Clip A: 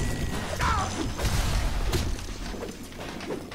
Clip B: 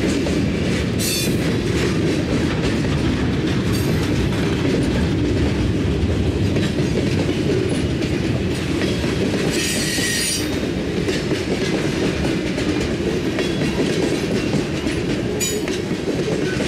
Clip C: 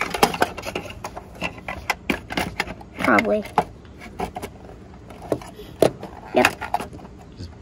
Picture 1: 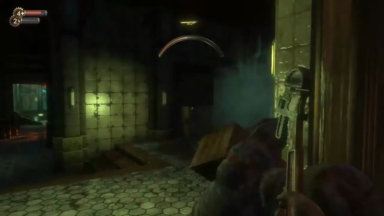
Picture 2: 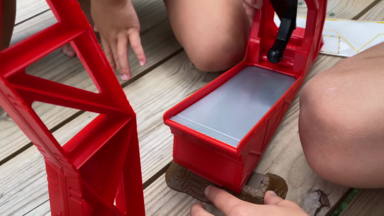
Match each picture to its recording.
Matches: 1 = A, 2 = C